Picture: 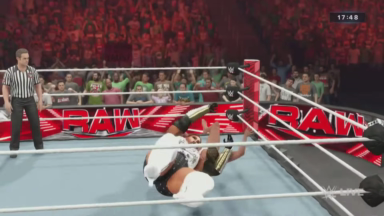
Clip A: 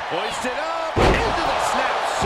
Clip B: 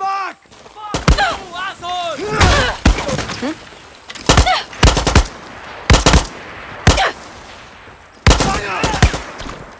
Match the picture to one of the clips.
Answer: A